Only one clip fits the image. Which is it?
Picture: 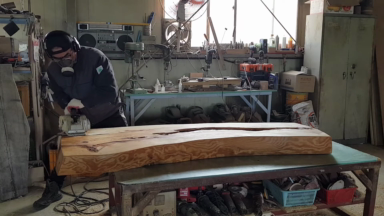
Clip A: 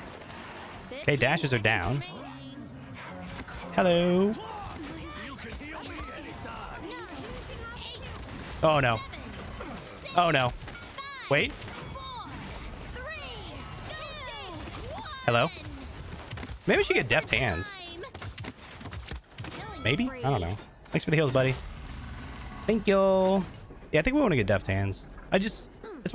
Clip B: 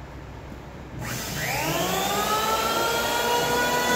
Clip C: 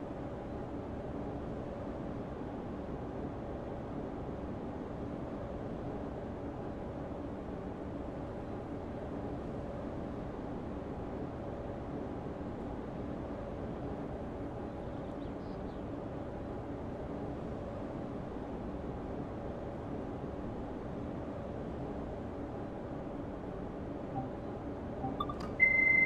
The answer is B